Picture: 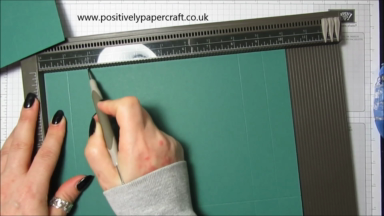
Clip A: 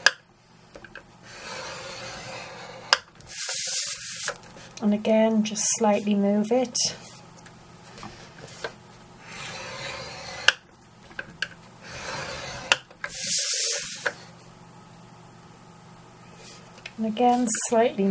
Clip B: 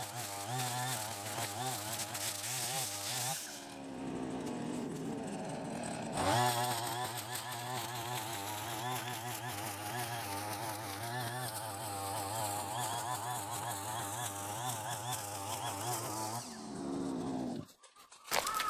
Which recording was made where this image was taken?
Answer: A